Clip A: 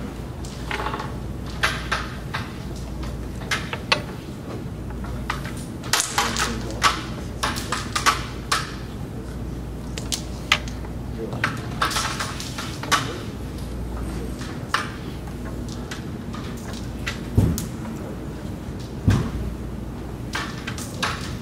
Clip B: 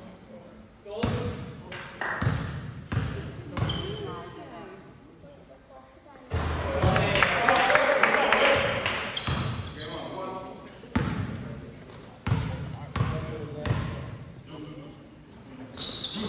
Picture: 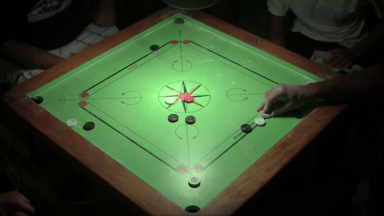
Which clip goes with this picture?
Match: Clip A